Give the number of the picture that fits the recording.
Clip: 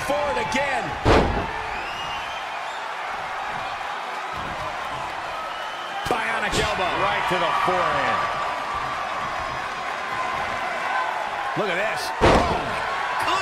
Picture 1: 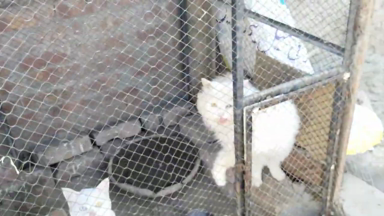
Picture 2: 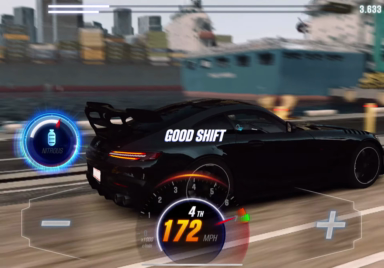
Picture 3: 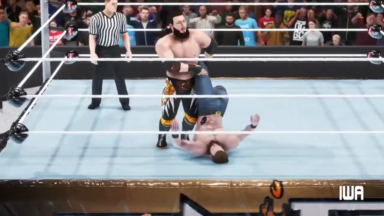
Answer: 3